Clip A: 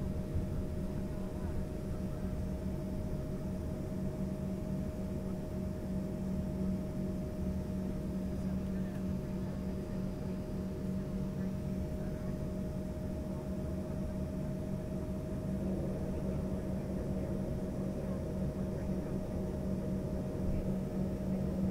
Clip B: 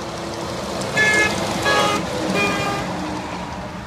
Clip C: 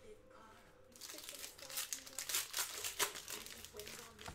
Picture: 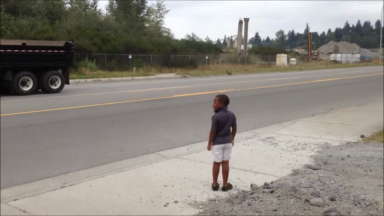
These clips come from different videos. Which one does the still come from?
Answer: B